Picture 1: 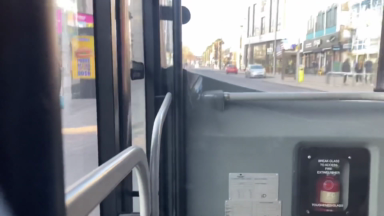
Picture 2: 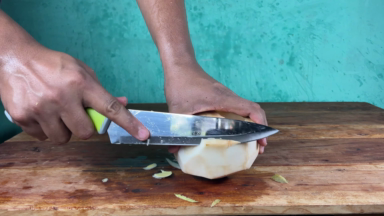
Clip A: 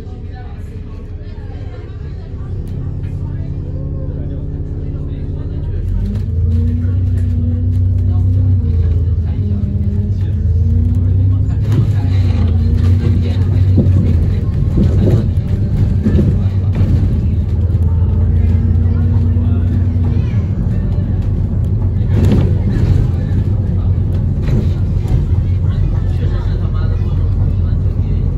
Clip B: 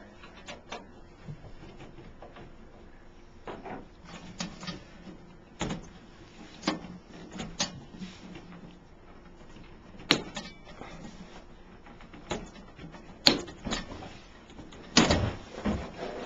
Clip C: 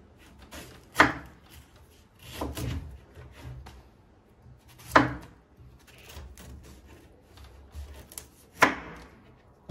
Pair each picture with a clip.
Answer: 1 A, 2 C